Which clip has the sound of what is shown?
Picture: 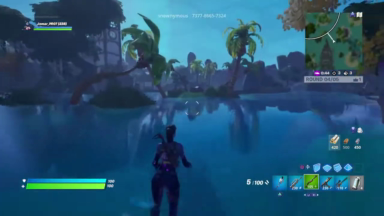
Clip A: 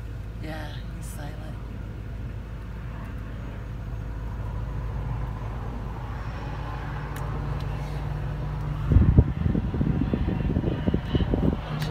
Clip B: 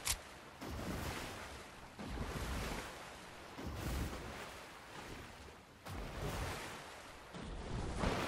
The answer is B